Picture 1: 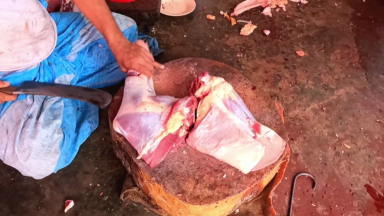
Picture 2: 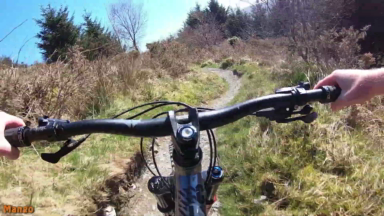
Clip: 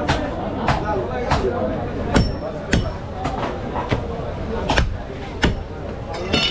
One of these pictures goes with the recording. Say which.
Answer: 1